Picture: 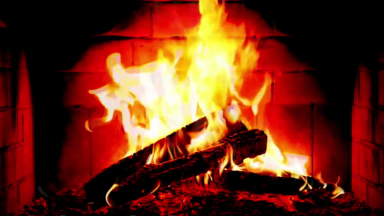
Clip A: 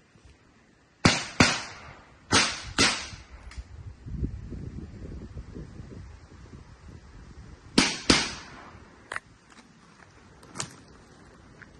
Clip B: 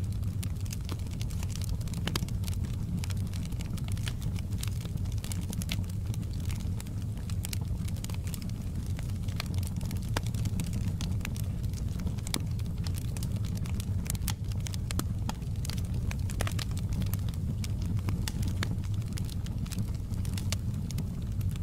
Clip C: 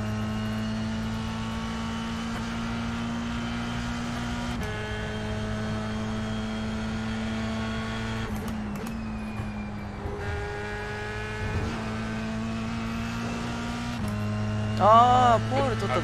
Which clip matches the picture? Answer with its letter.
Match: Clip B